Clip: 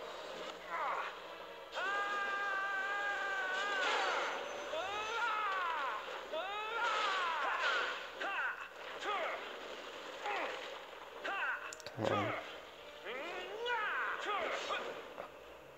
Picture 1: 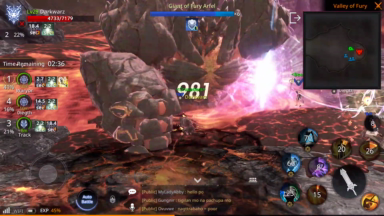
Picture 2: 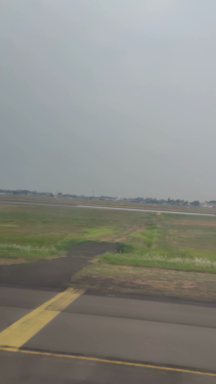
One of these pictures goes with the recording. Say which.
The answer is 1